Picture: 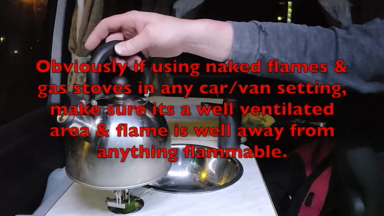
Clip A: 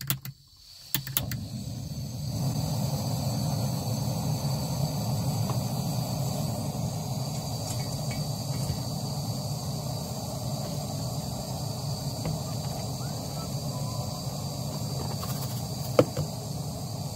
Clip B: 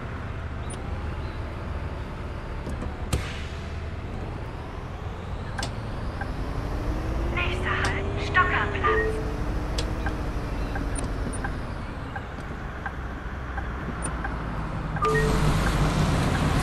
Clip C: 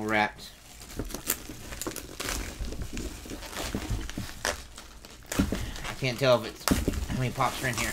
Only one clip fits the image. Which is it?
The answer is A